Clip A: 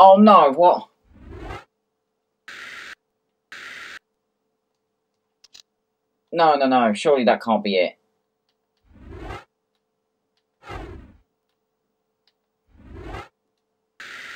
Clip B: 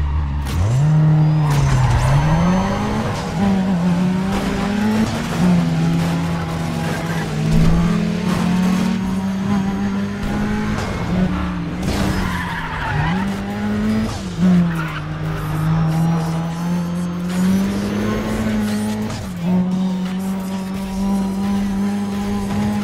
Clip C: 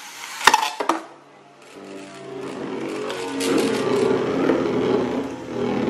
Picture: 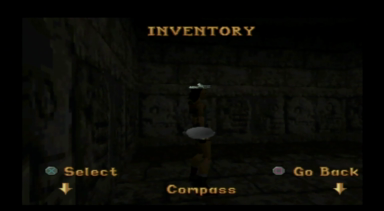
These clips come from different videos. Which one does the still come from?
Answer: A